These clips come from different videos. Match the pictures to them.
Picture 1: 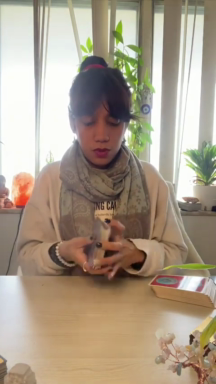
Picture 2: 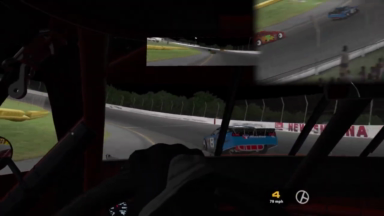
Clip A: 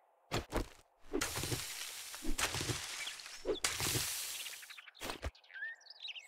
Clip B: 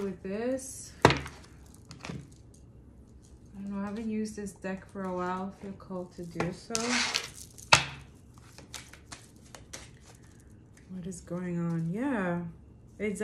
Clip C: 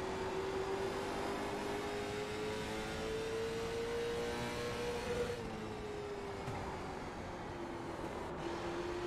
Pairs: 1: B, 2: C